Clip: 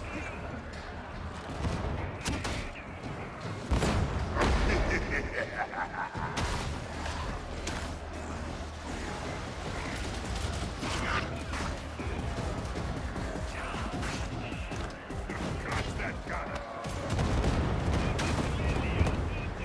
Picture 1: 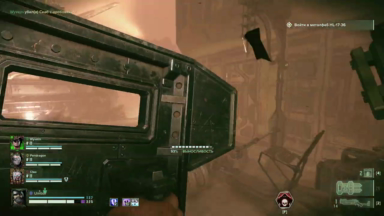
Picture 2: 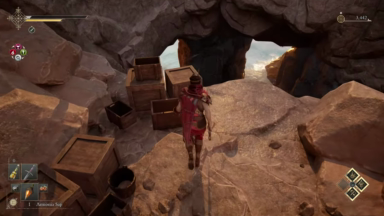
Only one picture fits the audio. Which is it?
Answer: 1